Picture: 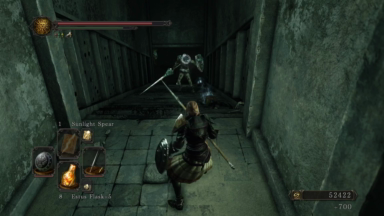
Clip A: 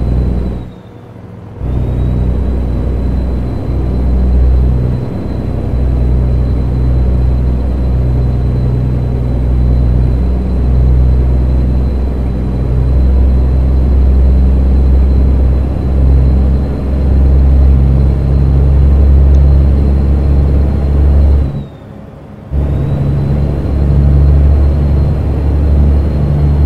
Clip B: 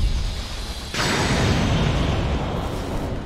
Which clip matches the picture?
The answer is B